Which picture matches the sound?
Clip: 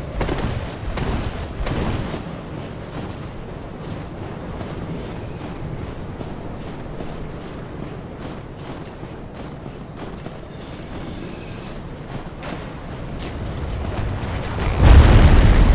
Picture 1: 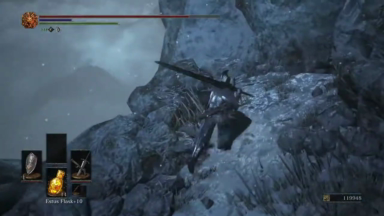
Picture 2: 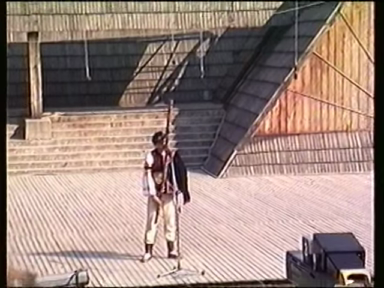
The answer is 1